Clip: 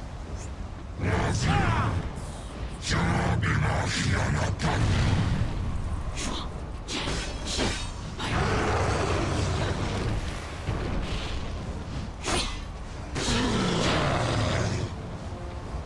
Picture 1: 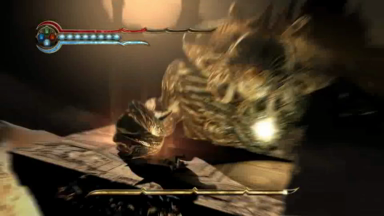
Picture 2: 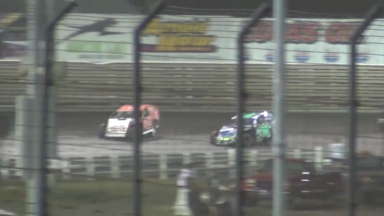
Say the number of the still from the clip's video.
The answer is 1